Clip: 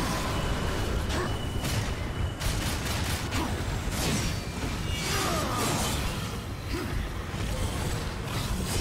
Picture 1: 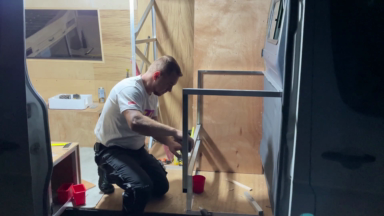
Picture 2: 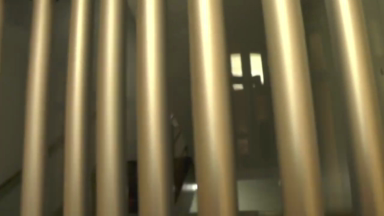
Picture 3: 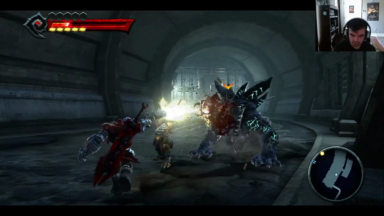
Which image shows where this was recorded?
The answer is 3